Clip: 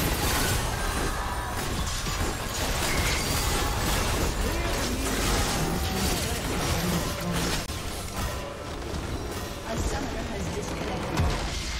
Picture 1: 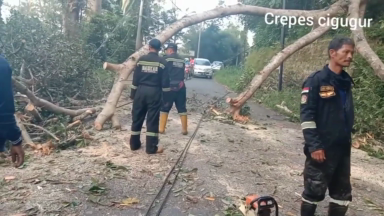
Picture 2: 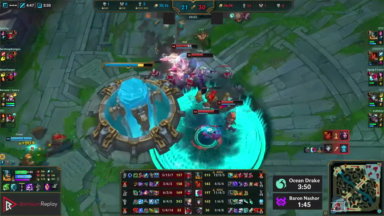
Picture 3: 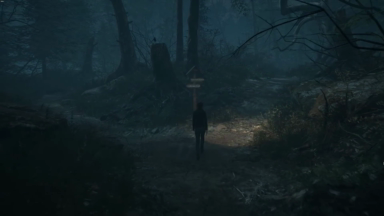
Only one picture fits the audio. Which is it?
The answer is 2